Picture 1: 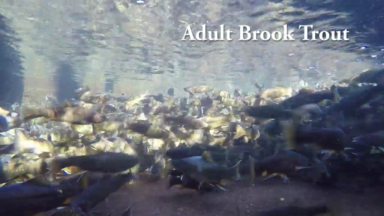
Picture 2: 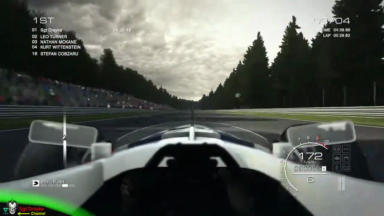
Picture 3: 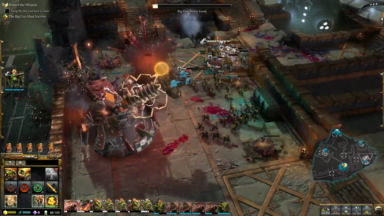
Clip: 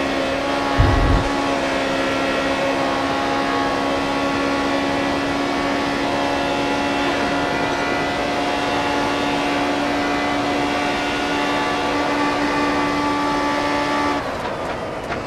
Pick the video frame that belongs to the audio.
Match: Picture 2